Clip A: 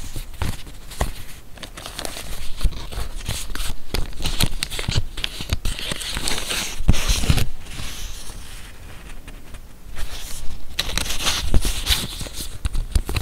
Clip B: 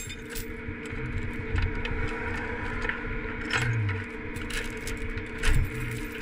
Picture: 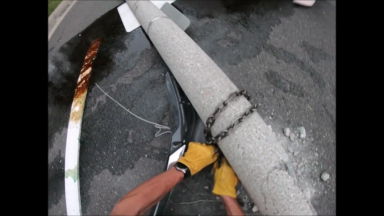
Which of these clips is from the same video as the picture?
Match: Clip B